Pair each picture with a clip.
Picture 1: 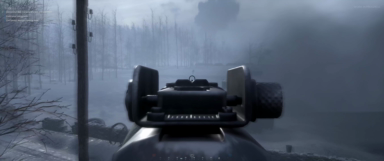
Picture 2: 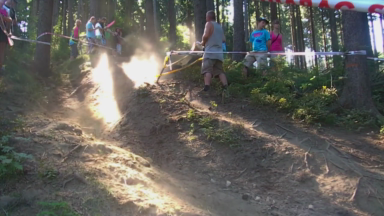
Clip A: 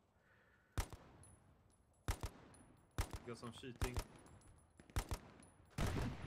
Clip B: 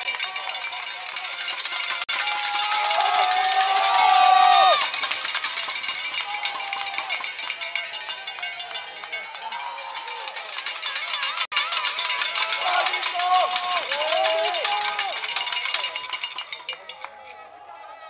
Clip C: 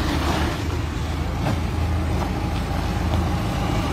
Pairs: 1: A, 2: B